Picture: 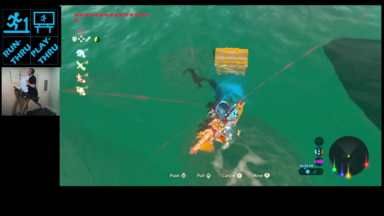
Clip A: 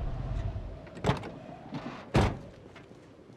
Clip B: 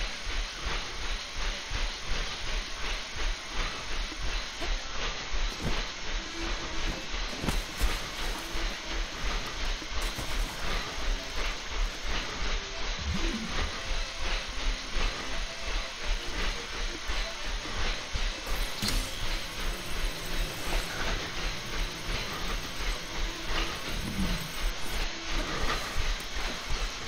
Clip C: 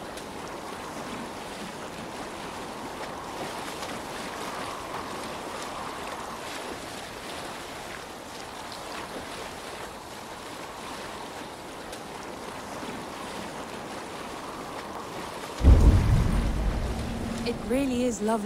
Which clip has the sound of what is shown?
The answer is B